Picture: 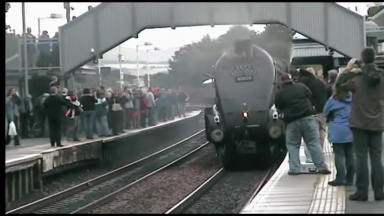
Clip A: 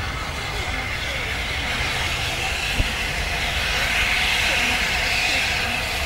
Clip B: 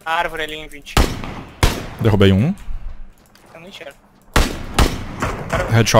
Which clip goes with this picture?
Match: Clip A